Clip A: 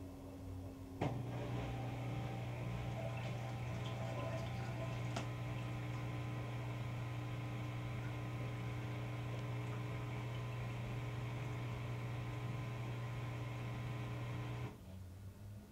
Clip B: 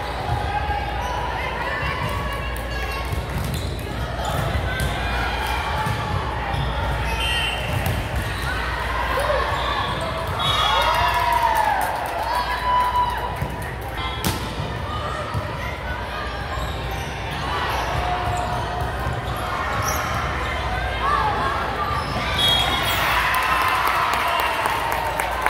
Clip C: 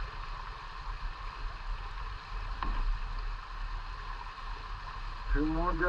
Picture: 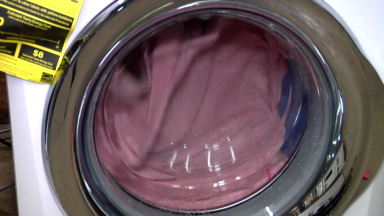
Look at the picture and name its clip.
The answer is A